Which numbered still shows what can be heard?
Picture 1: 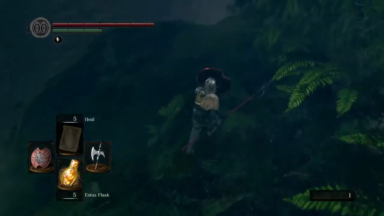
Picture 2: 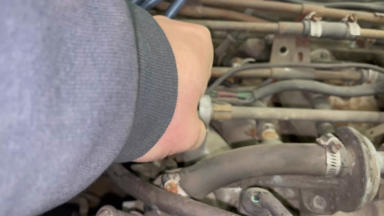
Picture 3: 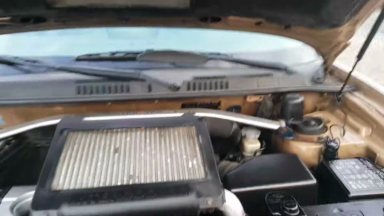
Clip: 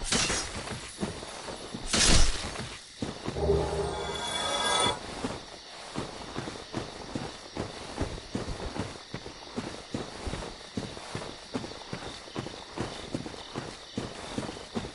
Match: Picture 1